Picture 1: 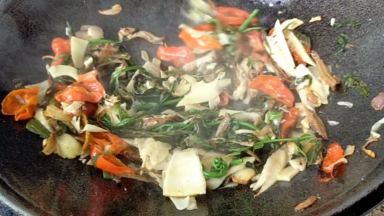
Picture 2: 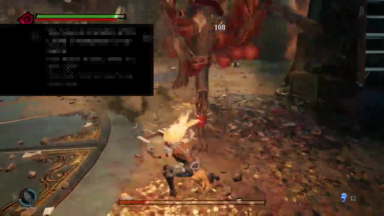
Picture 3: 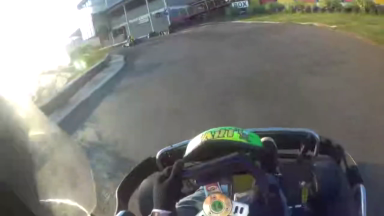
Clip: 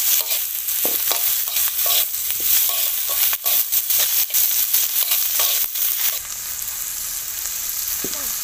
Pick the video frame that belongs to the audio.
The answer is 1